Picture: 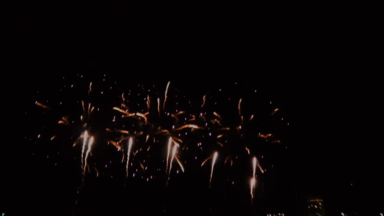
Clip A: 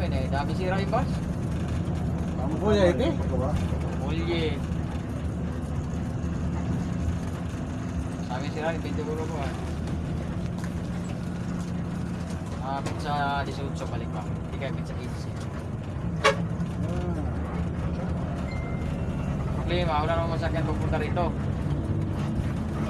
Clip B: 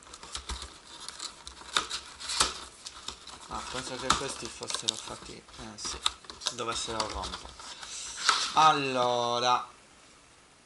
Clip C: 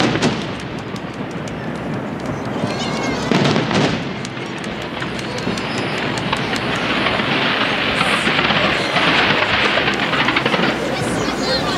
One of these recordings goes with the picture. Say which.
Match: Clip C